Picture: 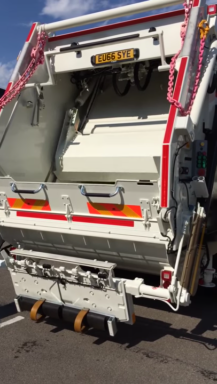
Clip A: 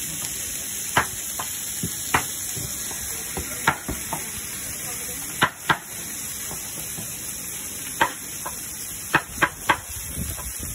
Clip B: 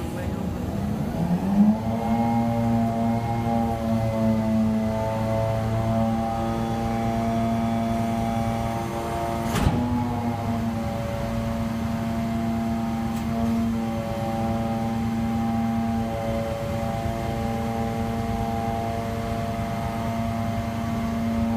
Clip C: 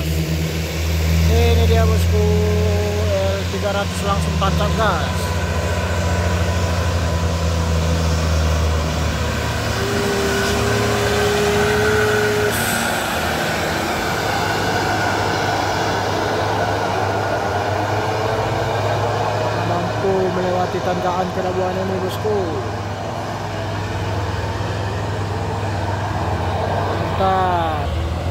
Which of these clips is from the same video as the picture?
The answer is B